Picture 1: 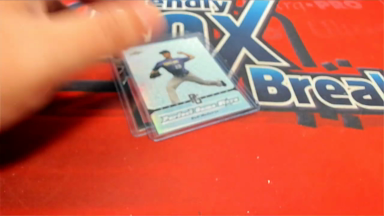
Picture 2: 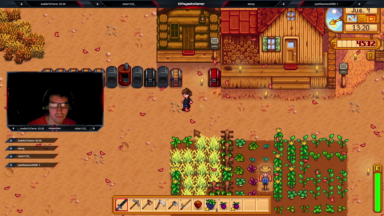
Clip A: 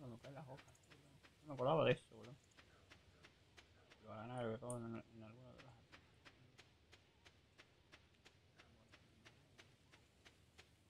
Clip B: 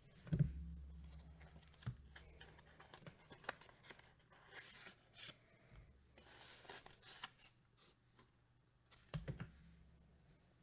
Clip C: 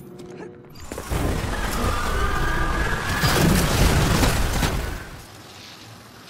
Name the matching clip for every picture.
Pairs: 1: B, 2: A